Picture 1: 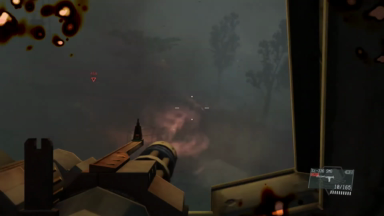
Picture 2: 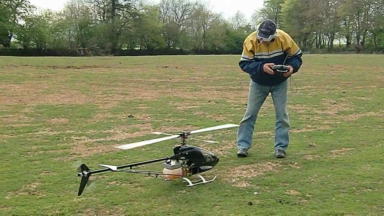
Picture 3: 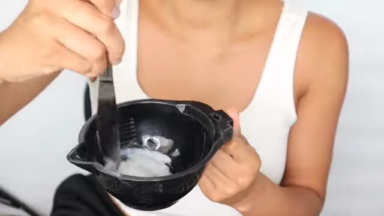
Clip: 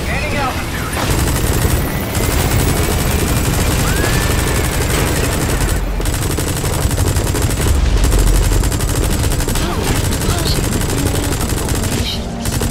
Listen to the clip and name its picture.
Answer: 1